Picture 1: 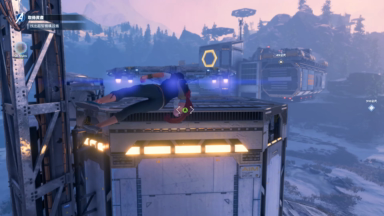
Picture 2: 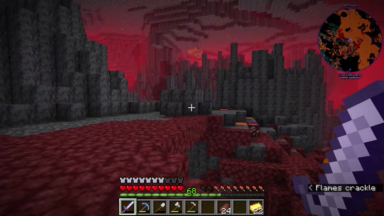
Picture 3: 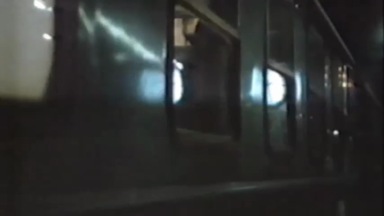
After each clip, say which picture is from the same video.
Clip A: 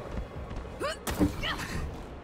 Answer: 1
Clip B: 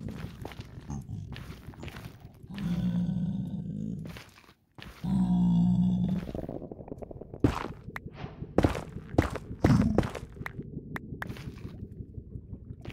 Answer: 2